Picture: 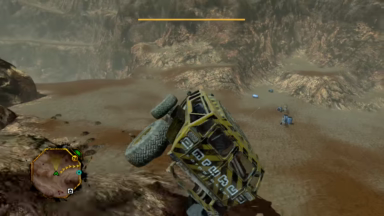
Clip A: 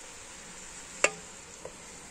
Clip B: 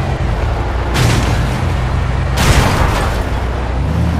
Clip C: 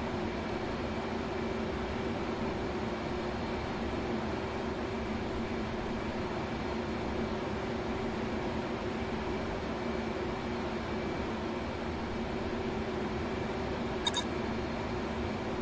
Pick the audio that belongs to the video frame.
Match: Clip B